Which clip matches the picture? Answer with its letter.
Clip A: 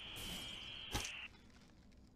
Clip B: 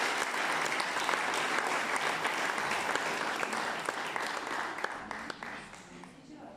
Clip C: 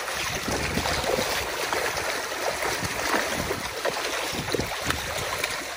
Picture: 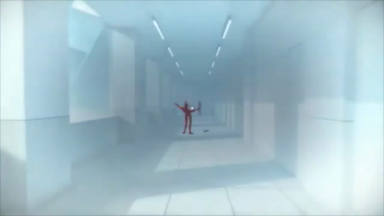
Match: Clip A